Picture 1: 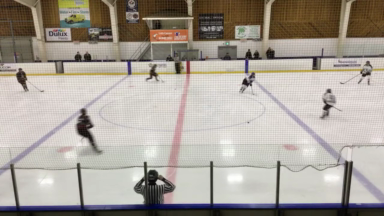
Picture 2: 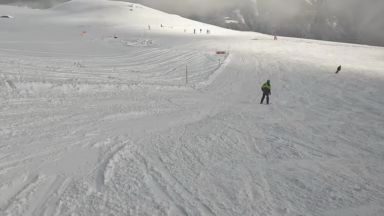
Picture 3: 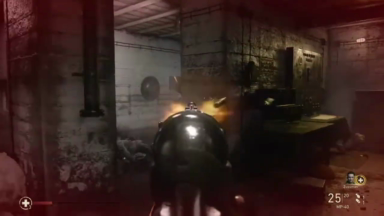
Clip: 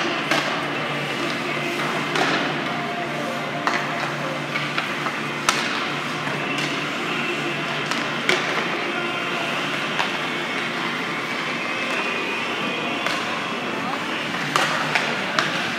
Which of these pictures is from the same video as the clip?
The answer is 1